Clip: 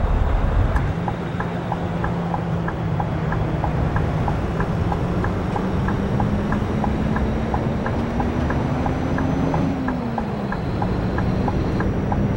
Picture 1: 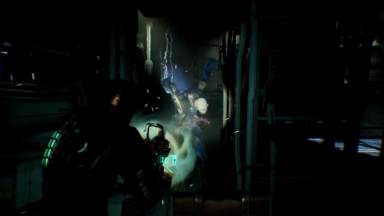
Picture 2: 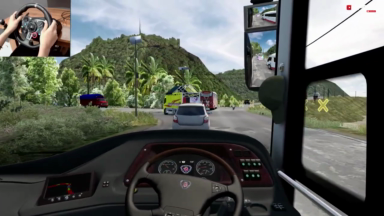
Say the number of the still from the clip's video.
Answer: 2